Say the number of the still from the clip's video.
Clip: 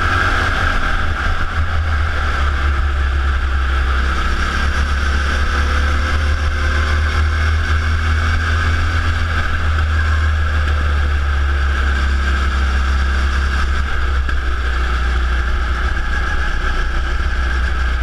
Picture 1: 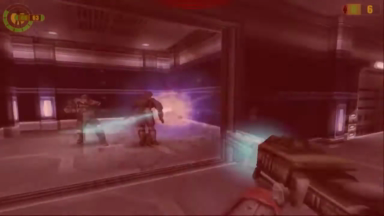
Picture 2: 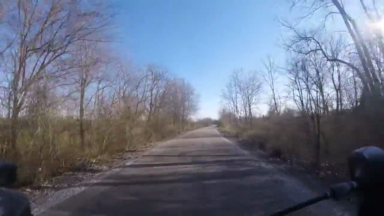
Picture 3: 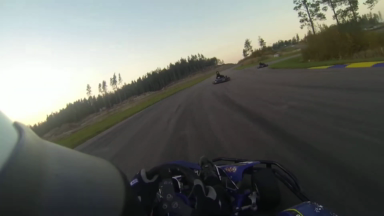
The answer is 3